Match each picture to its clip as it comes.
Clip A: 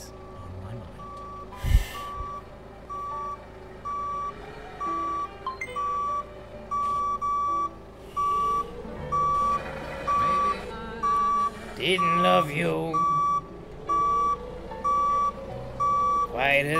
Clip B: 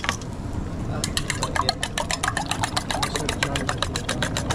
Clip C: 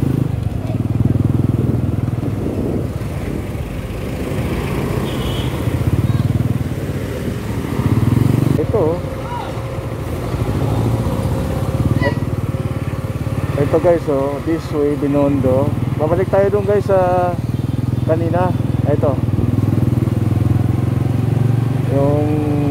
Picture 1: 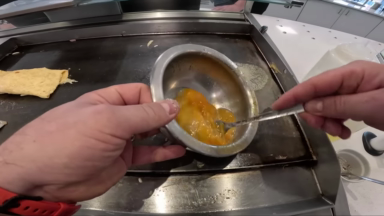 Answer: B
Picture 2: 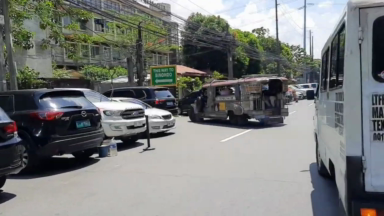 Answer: C